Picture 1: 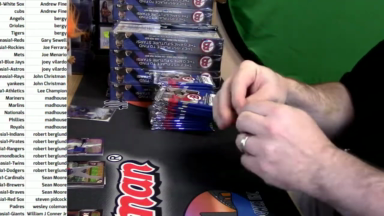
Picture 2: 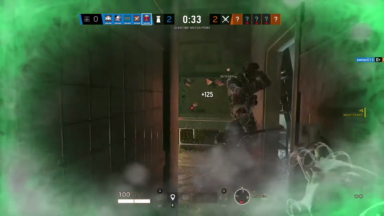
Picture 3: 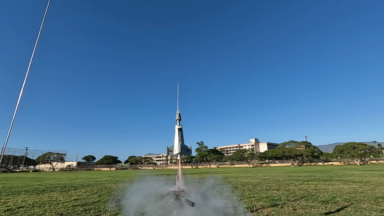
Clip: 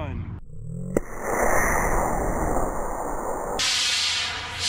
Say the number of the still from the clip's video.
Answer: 3